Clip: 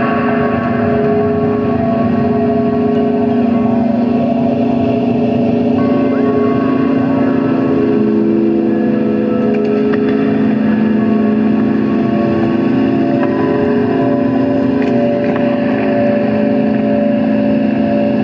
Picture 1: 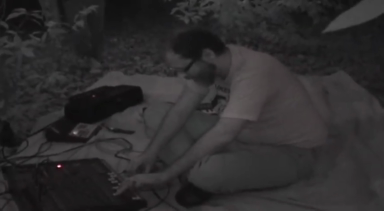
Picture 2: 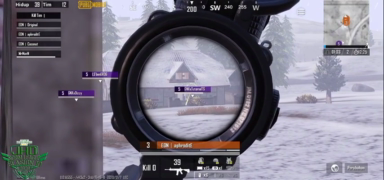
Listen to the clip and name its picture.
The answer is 1